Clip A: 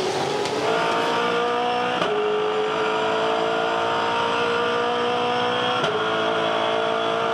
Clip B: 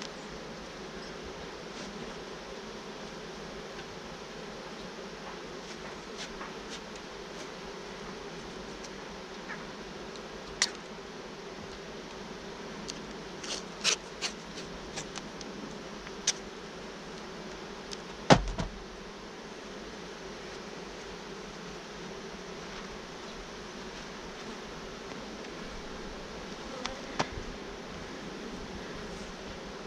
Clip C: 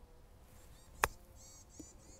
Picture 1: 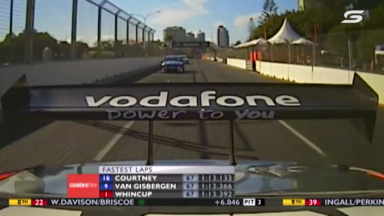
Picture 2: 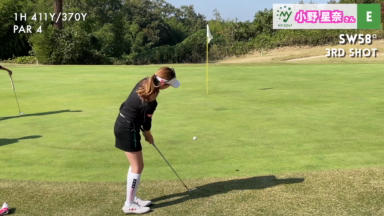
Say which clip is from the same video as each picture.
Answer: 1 A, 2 C